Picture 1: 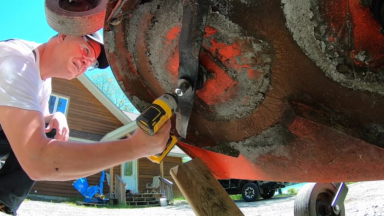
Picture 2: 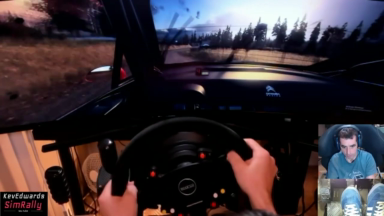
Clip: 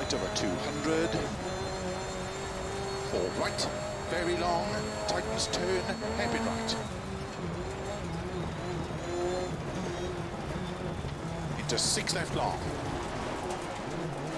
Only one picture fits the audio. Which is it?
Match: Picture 2